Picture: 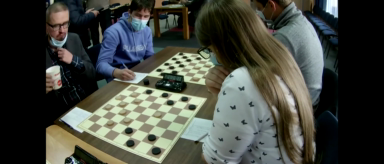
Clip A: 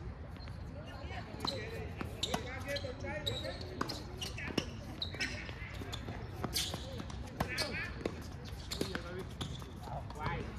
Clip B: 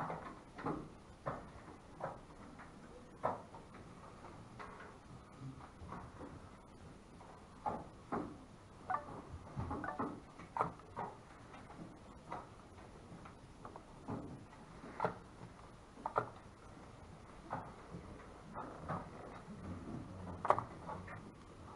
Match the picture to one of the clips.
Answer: B